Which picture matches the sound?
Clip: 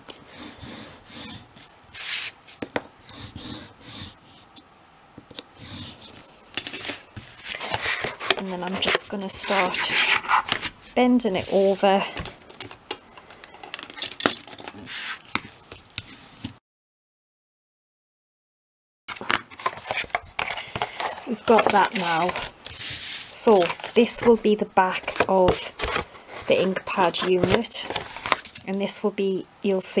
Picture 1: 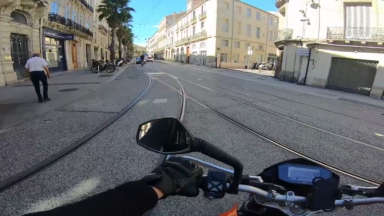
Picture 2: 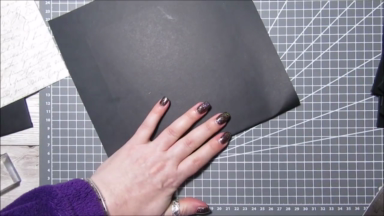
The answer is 2